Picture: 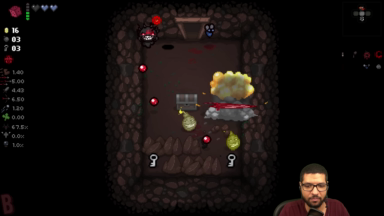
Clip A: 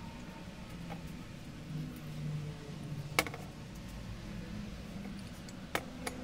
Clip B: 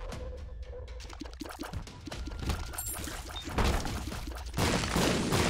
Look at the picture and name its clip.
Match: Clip B